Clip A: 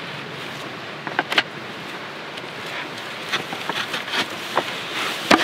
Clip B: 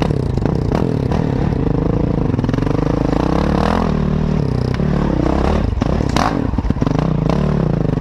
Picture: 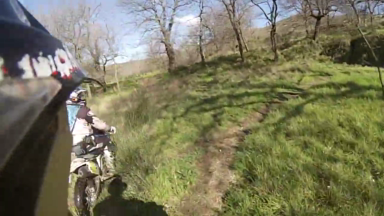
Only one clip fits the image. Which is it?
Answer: B